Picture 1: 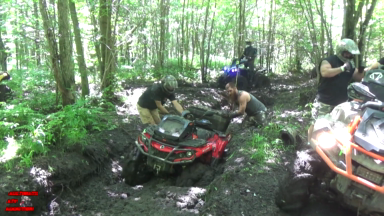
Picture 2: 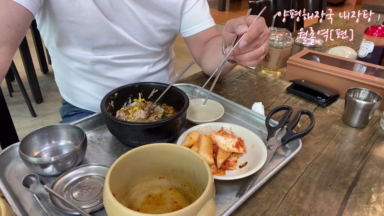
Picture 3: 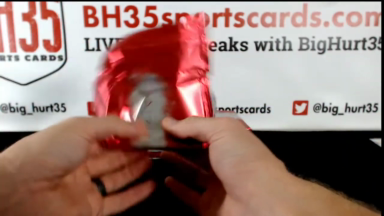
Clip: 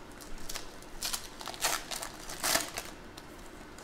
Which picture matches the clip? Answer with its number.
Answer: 3